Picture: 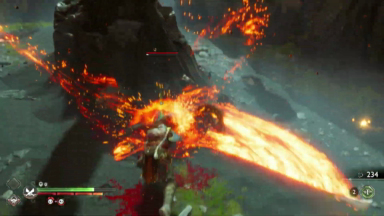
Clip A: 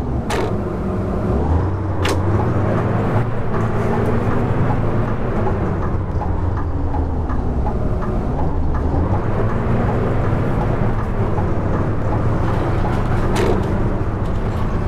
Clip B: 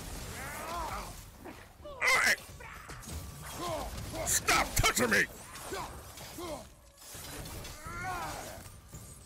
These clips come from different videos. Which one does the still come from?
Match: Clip B